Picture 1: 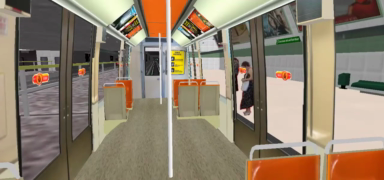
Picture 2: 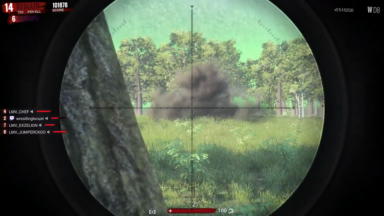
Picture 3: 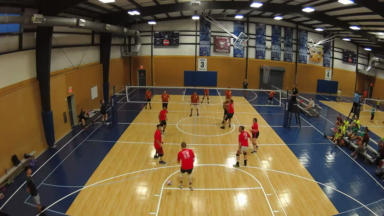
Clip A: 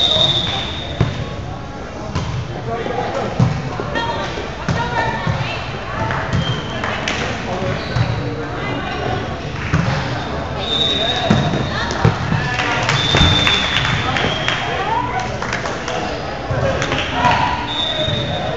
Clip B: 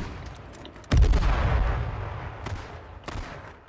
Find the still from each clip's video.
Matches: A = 3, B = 2